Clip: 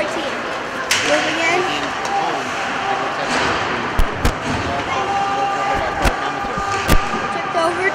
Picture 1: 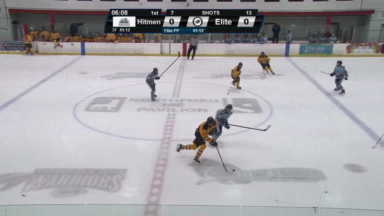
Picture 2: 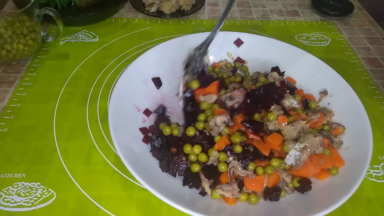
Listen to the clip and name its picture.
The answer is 1